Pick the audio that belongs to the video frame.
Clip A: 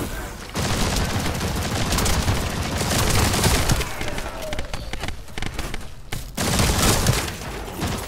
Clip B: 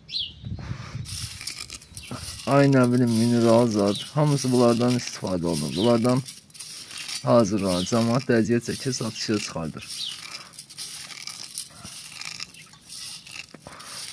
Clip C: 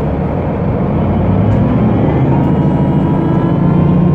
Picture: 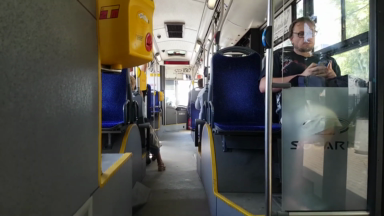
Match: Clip C